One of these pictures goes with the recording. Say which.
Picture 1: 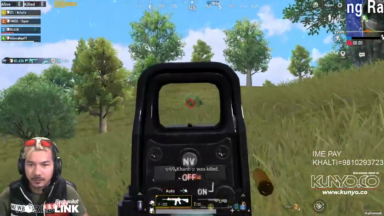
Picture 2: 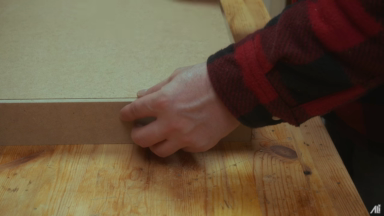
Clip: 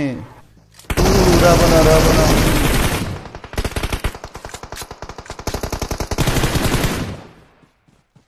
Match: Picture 1